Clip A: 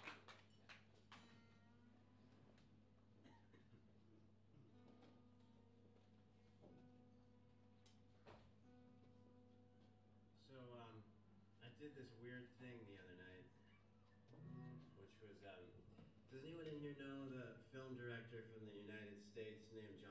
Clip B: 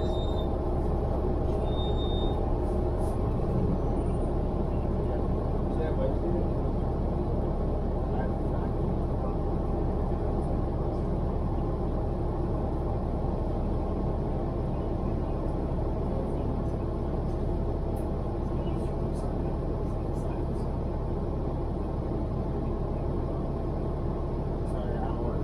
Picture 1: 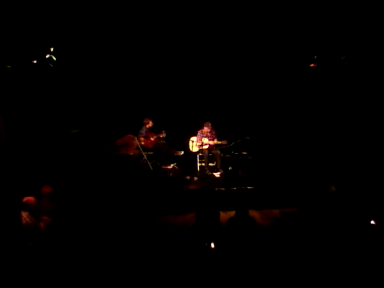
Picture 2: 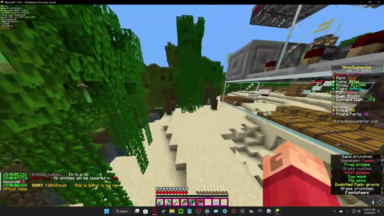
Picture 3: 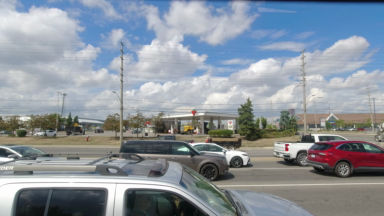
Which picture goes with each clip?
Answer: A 1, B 3